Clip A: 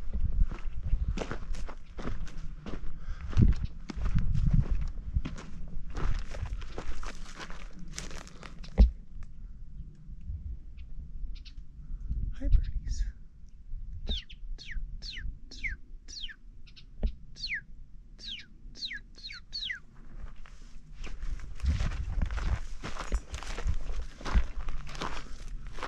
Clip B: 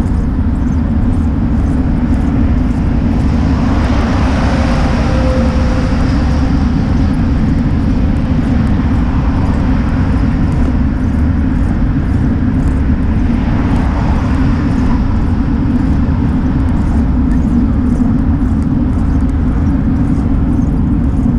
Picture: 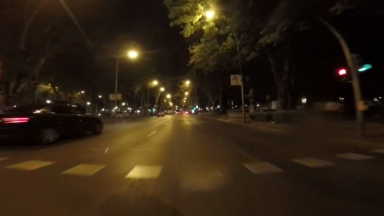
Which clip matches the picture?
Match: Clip B